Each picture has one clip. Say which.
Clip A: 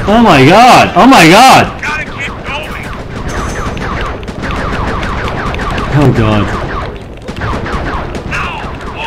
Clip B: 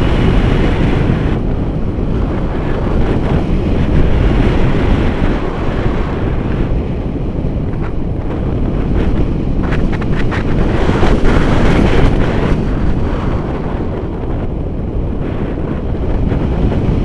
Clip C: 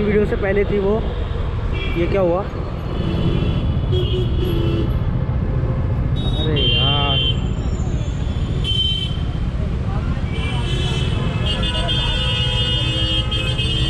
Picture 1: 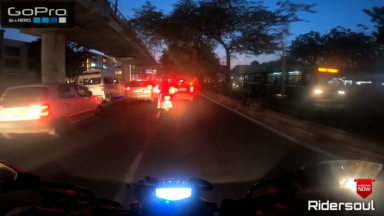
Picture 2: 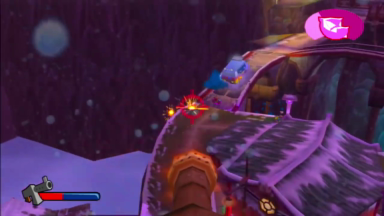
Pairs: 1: C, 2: A